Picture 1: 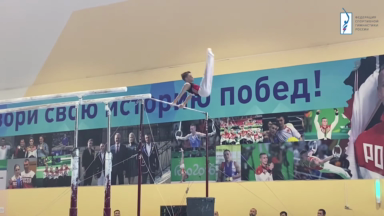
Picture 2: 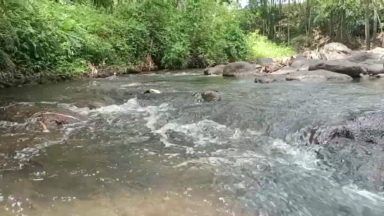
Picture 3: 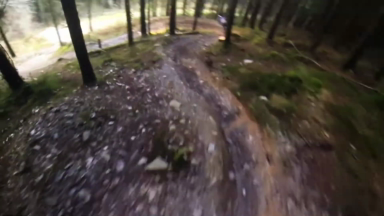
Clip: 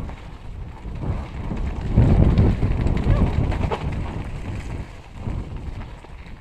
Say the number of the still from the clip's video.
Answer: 3